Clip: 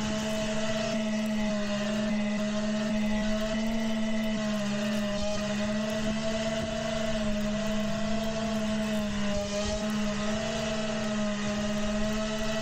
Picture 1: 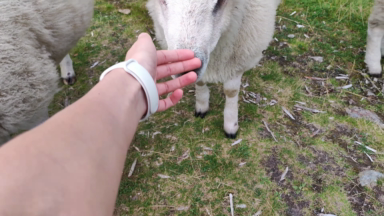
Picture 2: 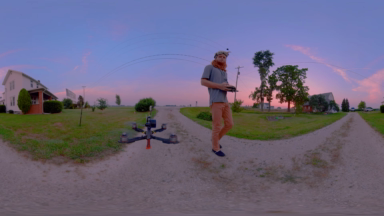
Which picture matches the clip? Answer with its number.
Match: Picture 2